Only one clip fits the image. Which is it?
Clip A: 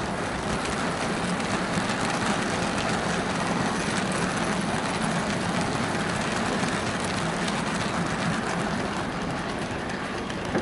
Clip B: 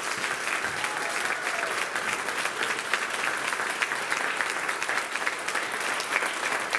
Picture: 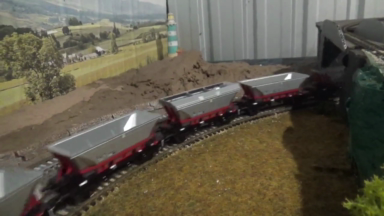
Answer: A